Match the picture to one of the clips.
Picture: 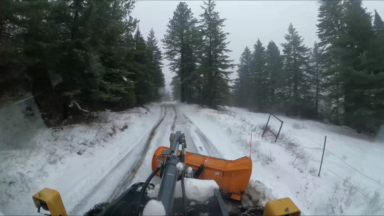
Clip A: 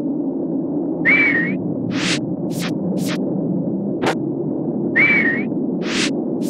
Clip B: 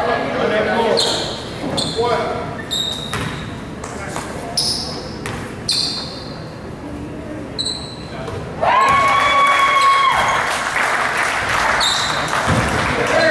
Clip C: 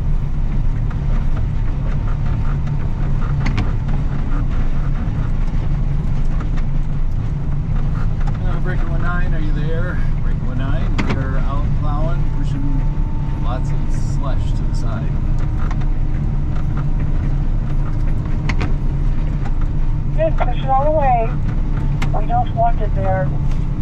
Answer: C